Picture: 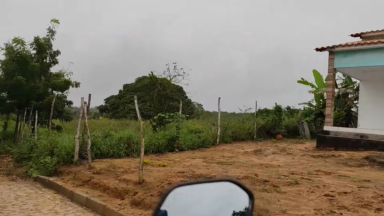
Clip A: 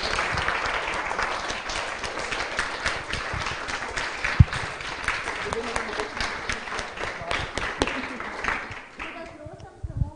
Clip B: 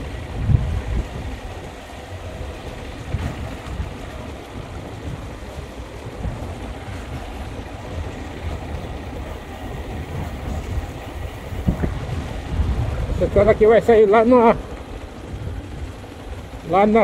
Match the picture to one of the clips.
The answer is B